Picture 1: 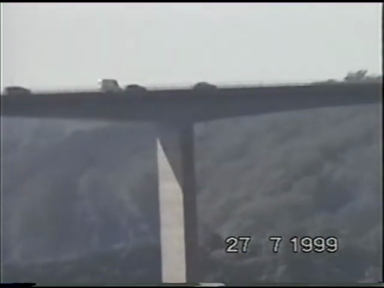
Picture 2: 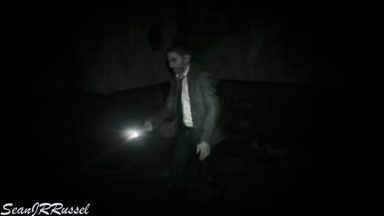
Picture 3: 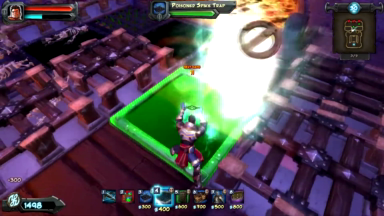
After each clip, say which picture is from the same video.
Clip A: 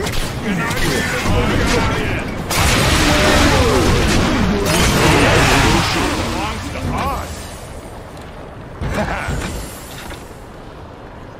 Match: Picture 3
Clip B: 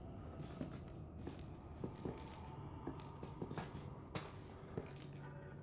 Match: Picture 2